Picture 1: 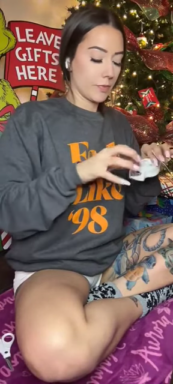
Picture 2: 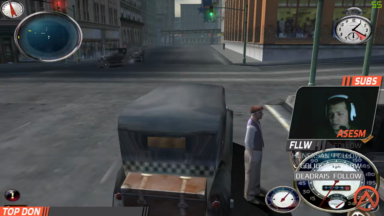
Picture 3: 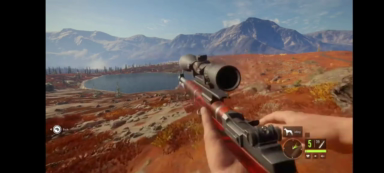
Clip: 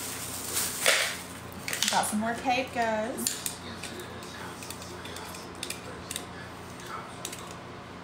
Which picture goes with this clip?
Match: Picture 1